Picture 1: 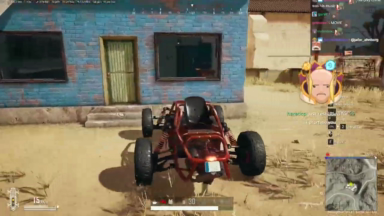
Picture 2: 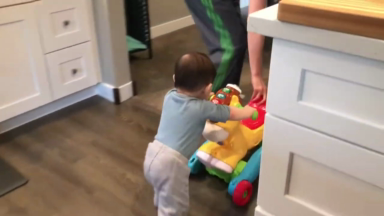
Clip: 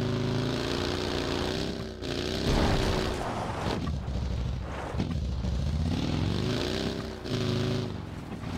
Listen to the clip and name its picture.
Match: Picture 1